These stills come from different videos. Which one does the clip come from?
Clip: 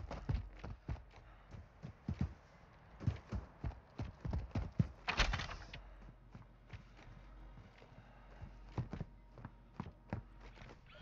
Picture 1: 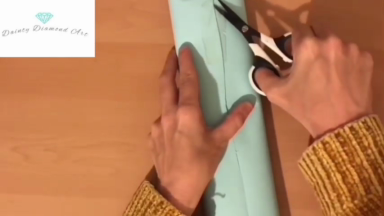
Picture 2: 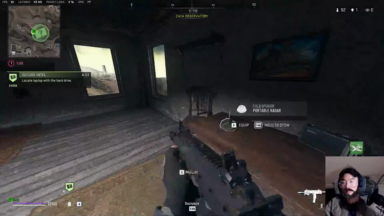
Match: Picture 2